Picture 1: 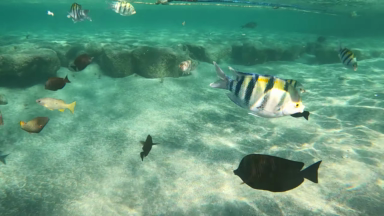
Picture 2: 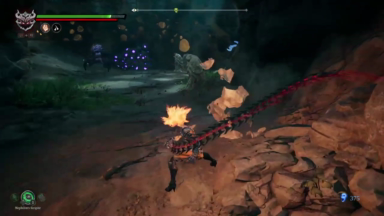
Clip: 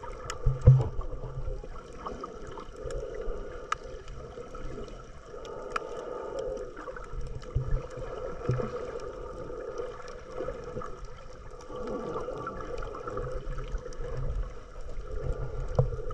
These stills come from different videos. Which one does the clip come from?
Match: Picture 1